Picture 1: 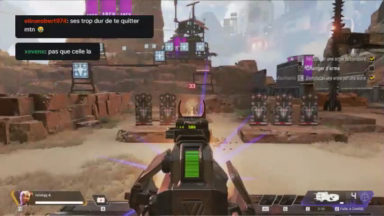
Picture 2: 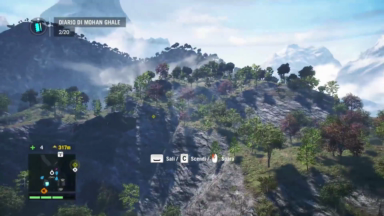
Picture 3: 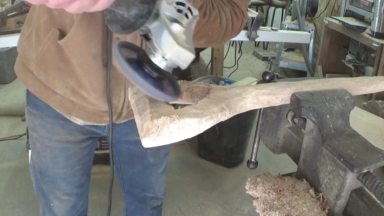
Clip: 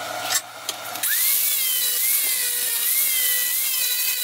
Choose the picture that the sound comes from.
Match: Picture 3